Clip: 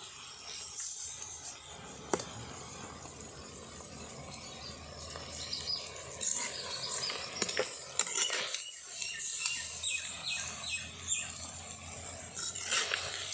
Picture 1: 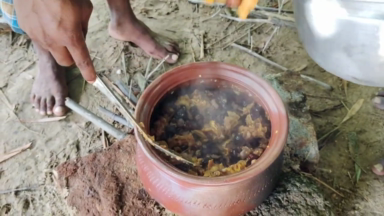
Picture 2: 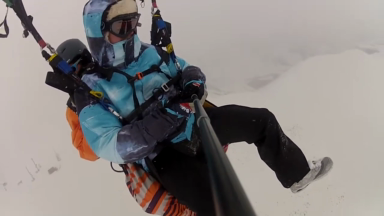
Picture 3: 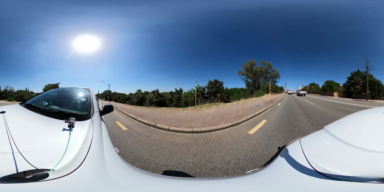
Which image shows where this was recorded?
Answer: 1